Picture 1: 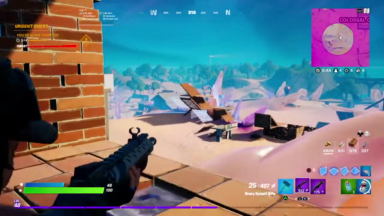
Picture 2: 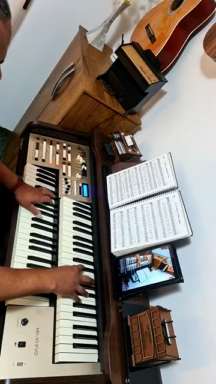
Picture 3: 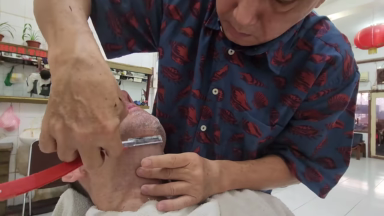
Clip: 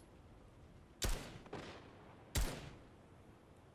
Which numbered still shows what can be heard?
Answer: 1